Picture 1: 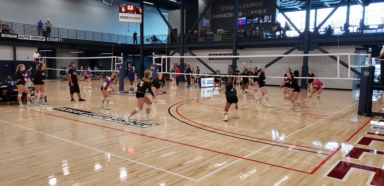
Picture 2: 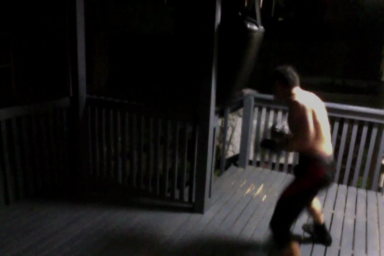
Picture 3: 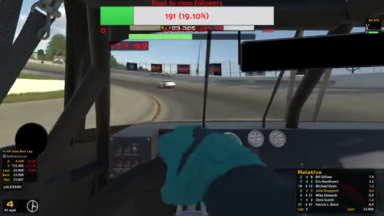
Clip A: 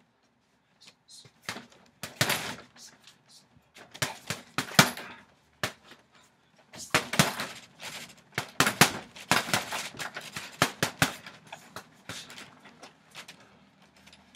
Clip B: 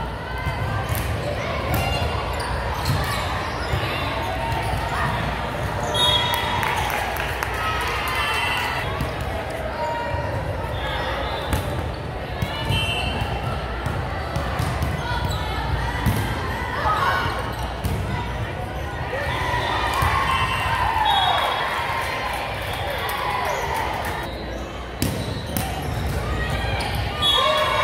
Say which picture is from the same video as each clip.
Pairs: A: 2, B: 1